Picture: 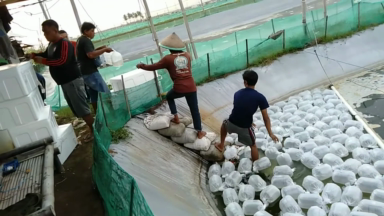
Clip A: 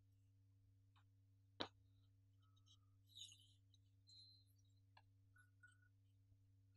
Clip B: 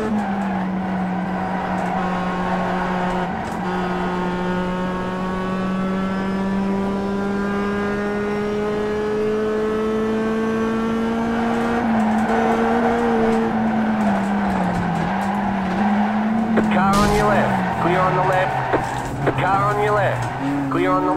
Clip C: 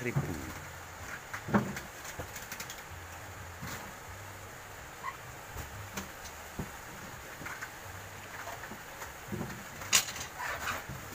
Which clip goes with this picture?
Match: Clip C